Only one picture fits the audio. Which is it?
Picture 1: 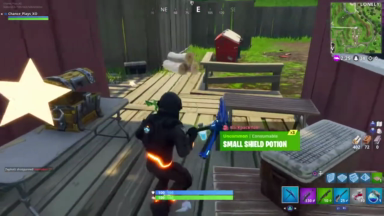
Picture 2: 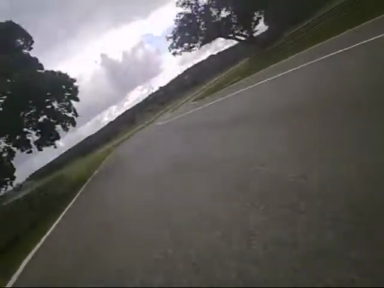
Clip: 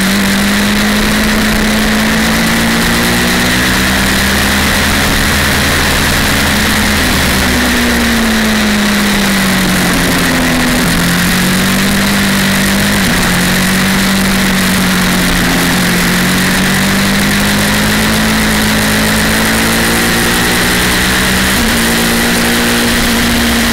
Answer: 2